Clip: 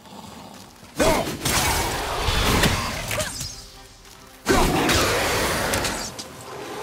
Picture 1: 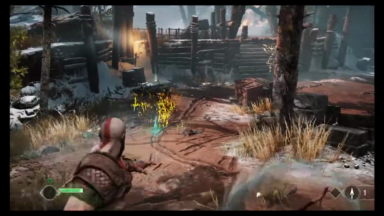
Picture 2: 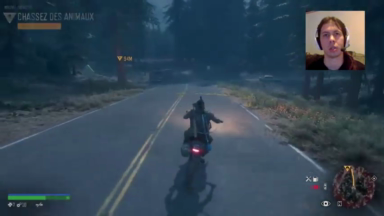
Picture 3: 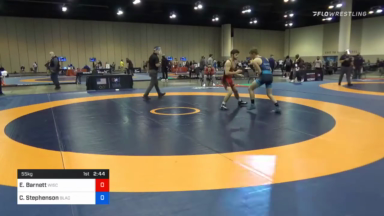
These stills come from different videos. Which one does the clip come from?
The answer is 1